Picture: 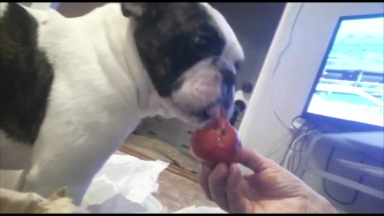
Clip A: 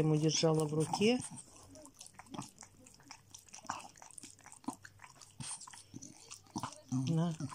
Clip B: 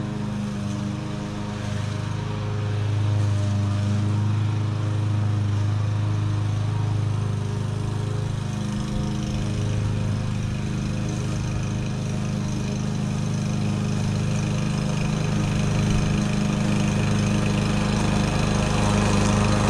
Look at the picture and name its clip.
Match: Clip A